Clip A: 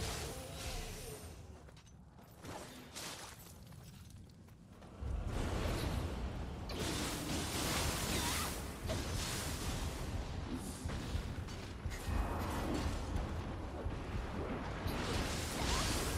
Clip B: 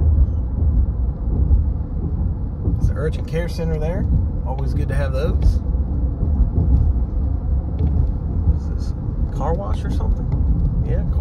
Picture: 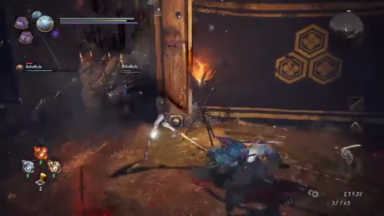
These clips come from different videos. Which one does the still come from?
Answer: A